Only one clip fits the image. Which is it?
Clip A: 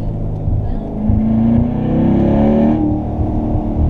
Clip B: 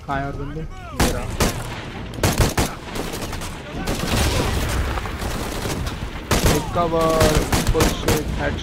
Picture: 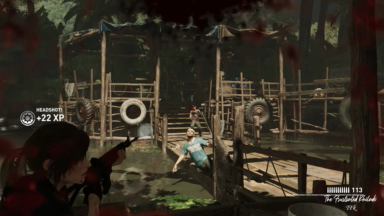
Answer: B